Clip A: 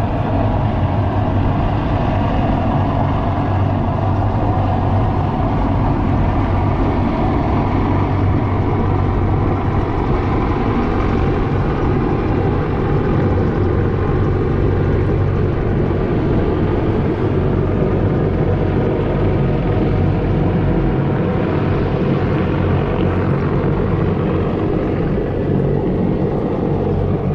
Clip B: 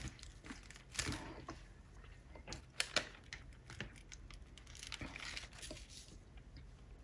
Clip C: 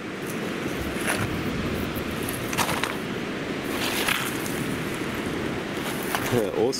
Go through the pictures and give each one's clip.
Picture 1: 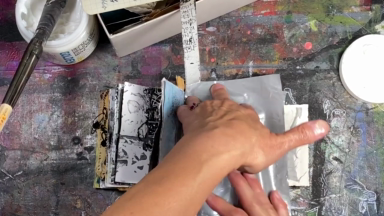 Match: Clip B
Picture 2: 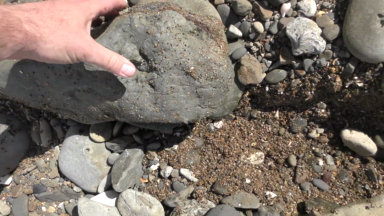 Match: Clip C